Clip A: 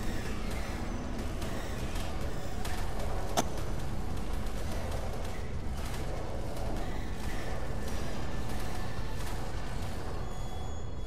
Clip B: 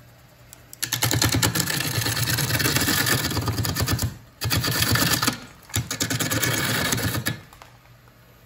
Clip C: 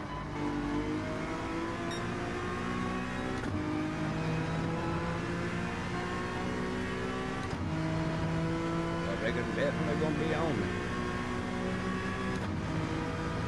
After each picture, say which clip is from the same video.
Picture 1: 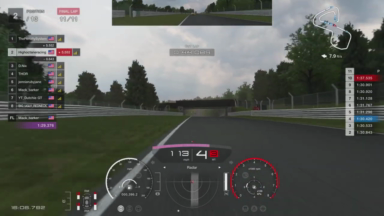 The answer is C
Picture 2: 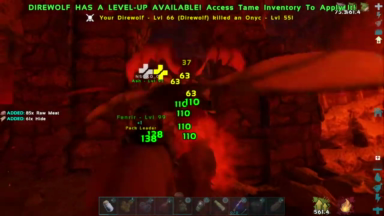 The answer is A